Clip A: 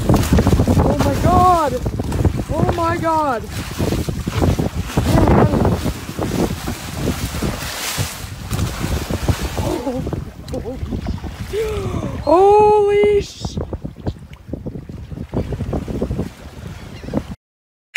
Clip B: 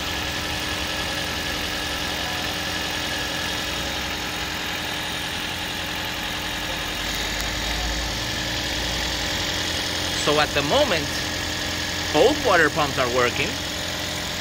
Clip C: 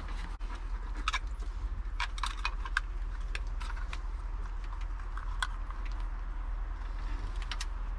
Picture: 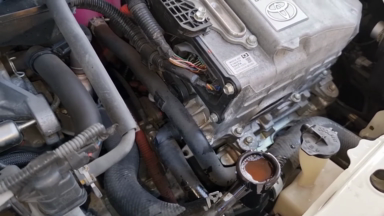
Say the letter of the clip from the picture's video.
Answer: B